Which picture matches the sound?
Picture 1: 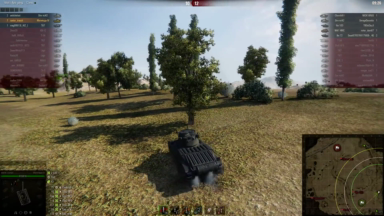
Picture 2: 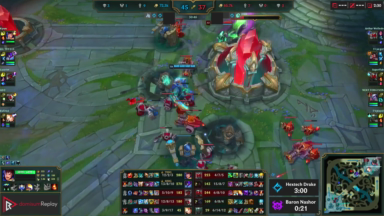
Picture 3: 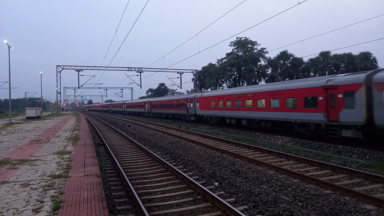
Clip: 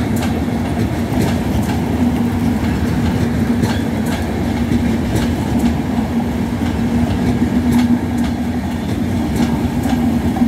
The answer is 3